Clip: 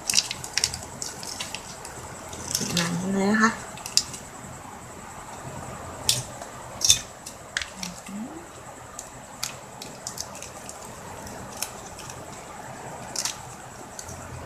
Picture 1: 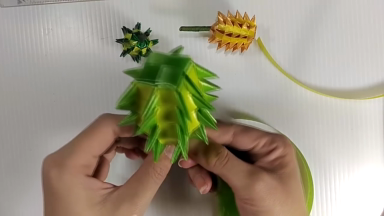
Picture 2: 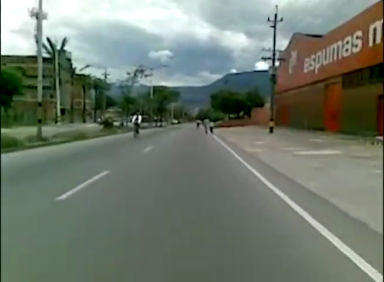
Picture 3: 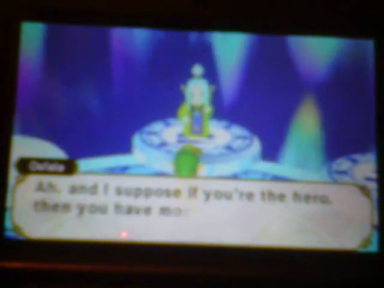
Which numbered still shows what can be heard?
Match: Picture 1